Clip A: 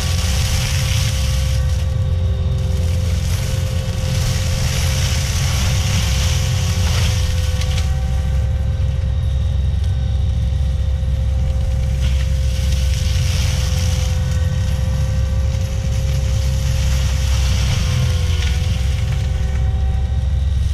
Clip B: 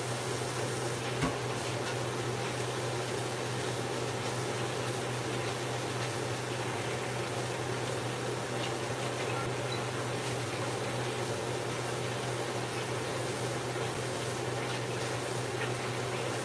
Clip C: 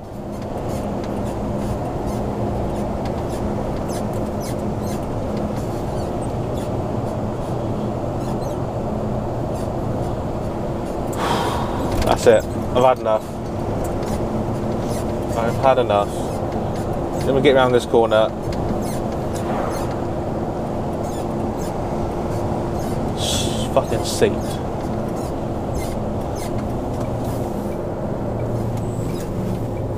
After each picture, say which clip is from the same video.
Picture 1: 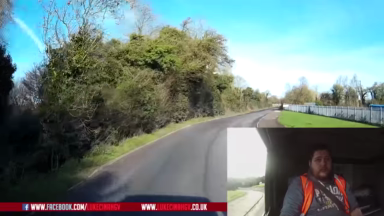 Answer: C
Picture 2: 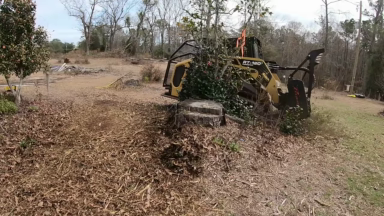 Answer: A